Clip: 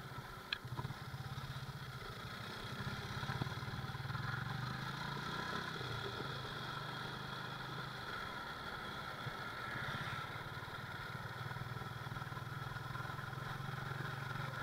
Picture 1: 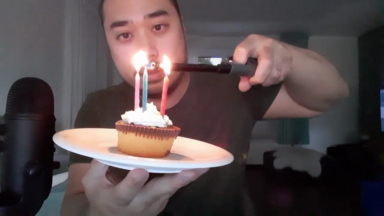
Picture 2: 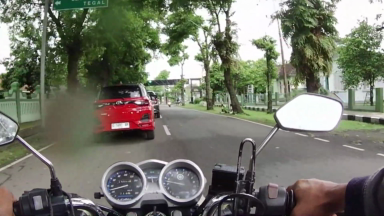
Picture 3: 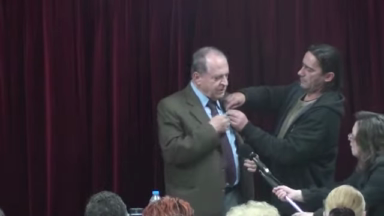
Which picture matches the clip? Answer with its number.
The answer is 2